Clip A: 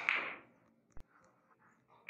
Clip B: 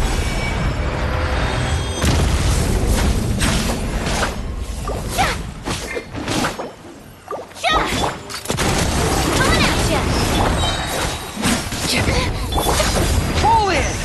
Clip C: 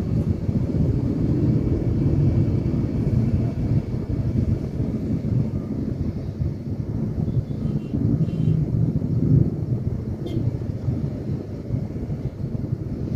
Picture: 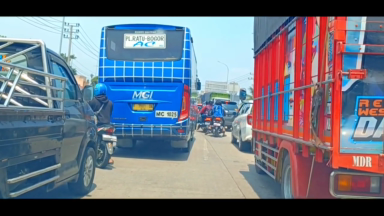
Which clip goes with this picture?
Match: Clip C